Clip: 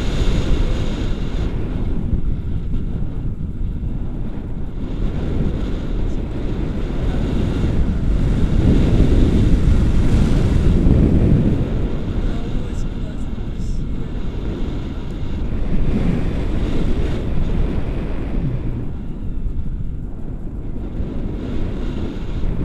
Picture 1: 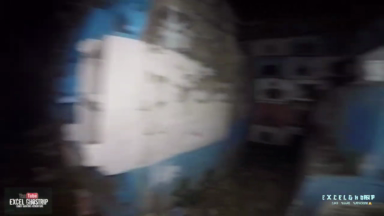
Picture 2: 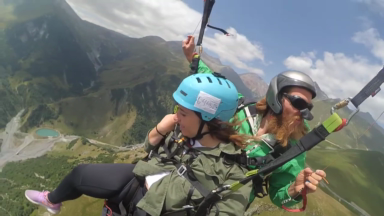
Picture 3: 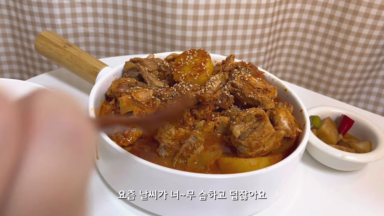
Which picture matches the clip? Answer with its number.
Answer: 2